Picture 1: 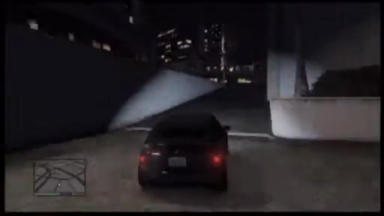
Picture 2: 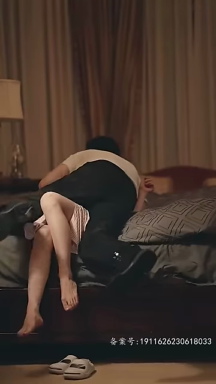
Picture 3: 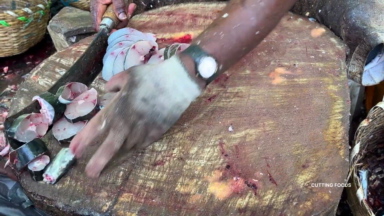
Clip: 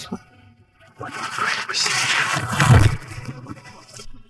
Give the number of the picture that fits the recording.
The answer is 2